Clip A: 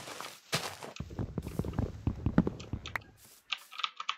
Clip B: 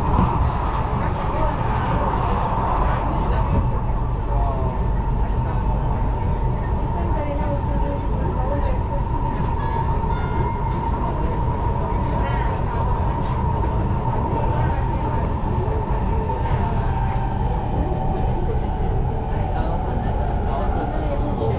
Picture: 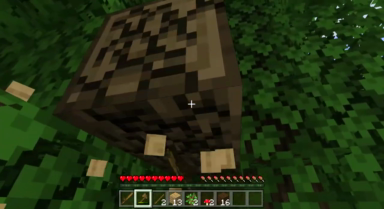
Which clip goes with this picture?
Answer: A